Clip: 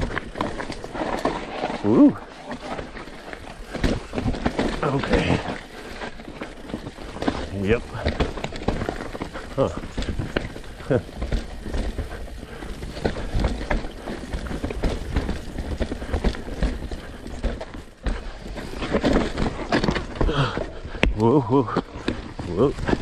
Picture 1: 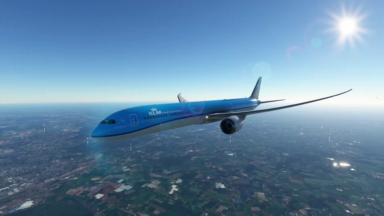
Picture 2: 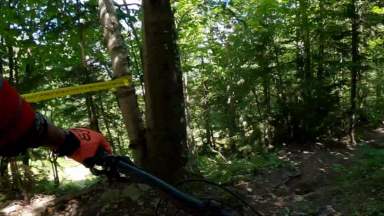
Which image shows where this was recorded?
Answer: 2